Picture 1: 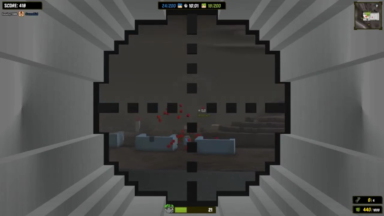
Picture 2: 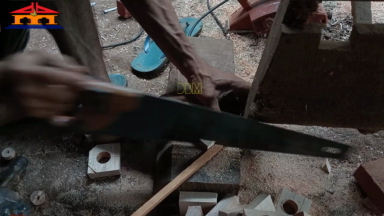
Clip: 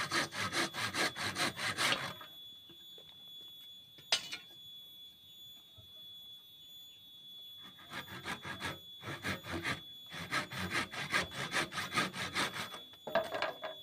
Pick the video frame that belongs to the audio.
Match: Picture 2